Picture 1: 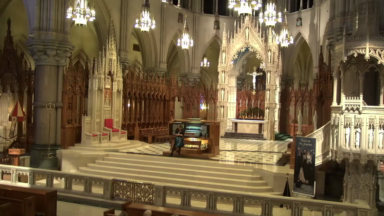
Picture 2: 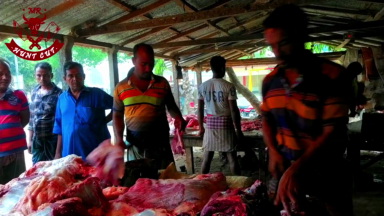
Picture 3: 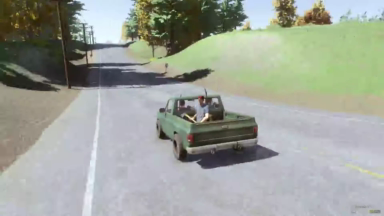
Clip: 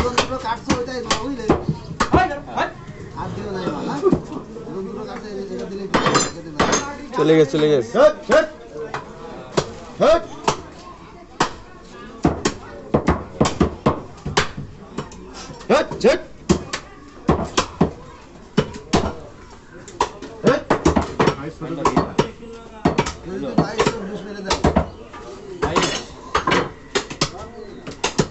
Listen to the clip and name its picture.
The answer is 2